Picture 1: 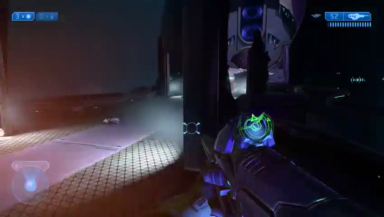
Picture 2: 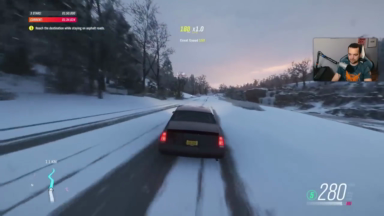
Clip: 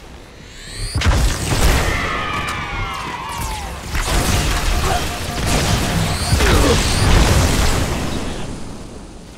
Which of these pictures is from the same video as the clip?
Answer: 1